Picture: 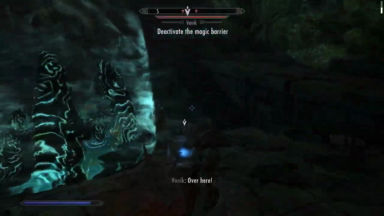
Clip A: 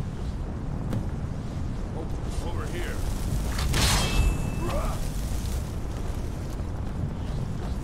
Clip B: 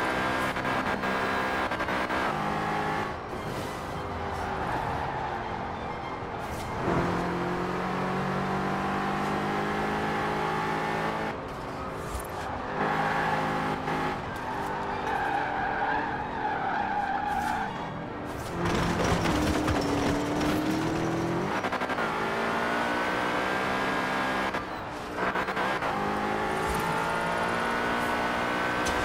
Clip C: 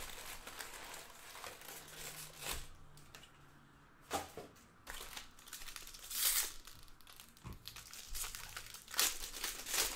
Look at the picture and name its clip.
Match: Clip A